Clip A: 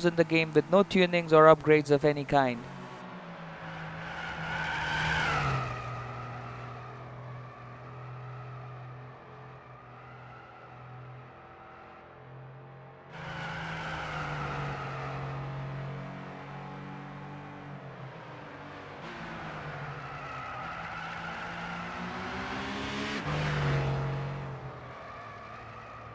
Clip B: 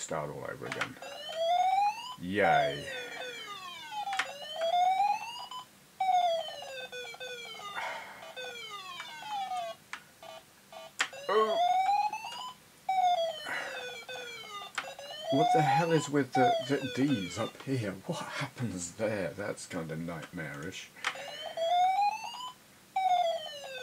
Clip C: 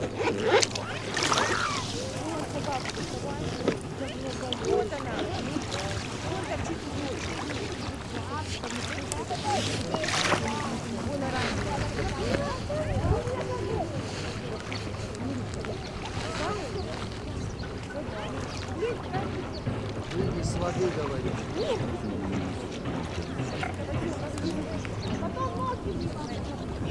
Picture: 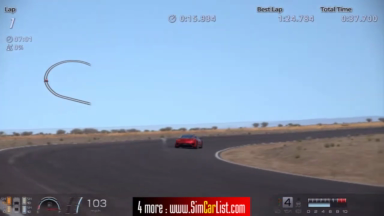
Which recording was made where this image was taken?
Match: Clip A